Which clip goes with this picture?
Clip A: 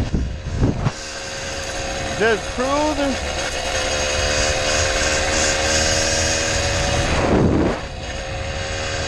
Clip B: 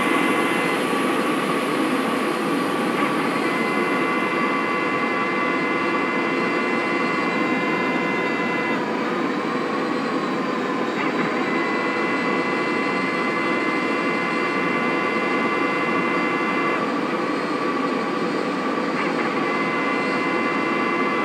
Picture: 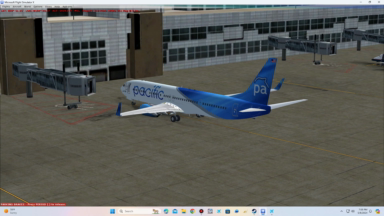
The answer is B